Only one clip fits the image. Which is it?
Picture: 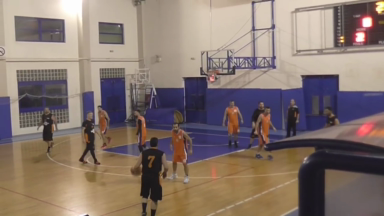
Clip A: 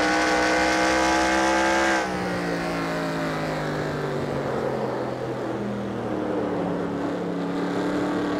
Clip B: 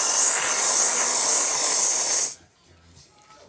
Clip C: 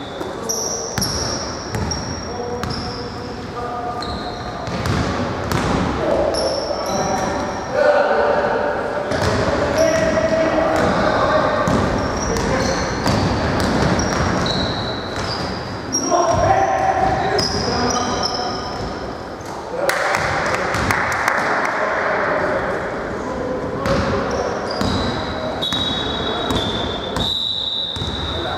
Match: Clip C